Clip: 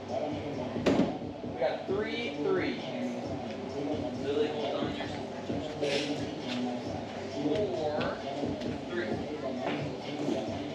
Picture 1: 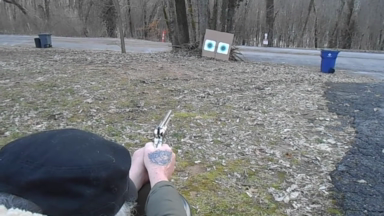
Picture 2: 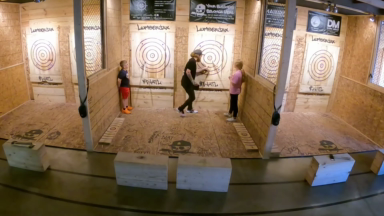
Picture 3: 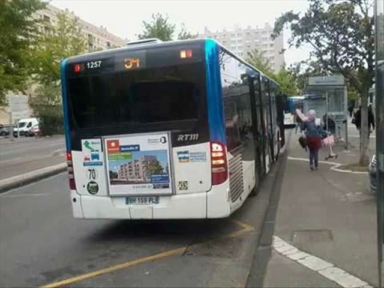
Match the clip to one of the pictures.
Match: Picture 2